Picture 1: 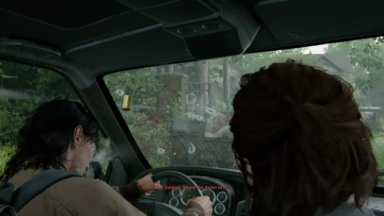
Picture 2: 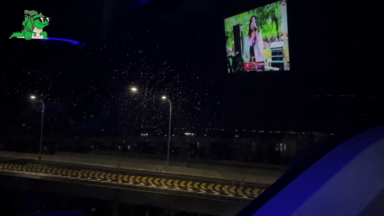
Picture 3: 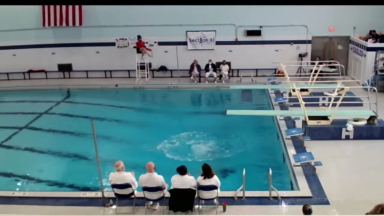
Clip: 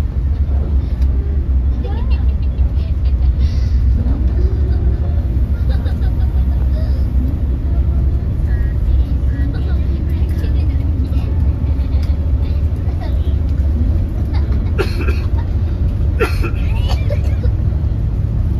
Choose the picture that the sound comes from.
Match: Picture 2